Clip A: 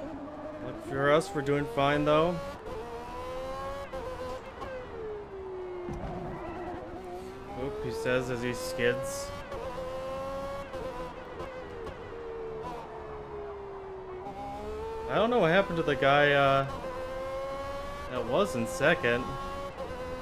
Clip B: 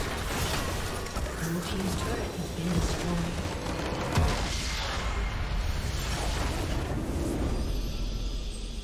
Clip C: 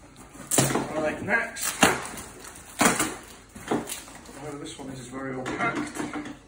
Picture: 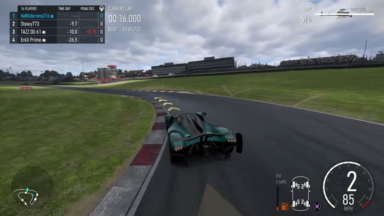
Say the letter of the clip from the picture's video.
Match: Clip A